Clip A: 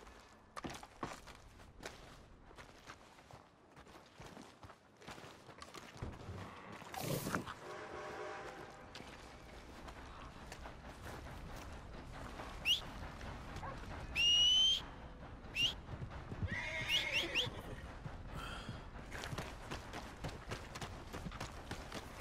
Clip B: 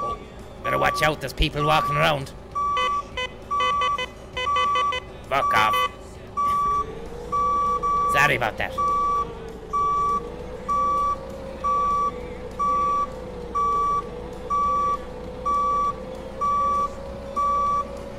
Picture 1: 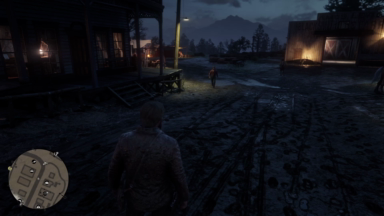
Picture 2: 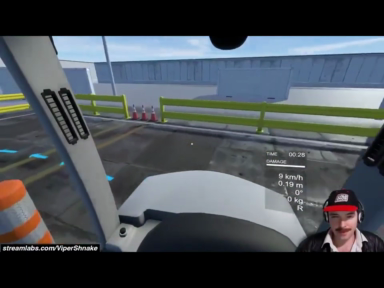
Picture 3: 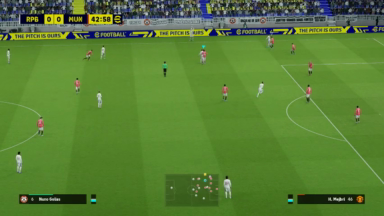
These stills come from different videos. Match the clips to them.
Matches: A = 1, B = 2